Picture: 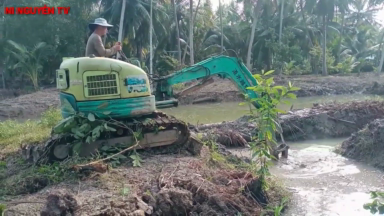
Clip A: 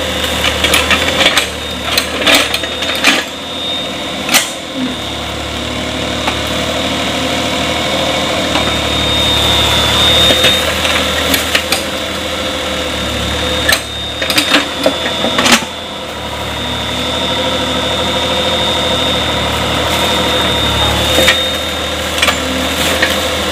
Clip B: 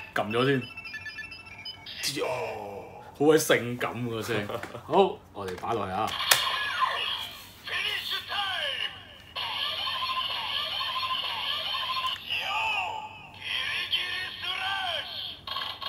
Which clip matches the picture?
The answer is A